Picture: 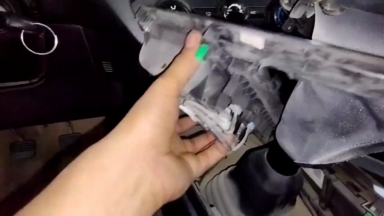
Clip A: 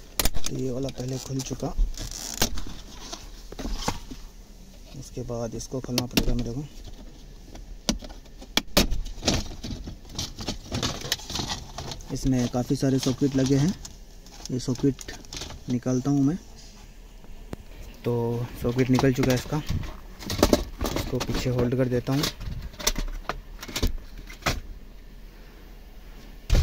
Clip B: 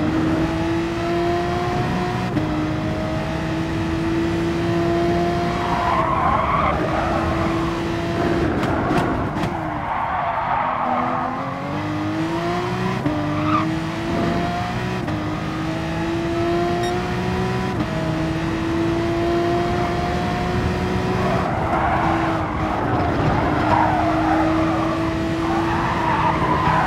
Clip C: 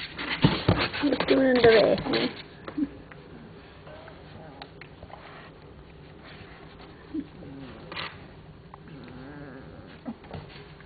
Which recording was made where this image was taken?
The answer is A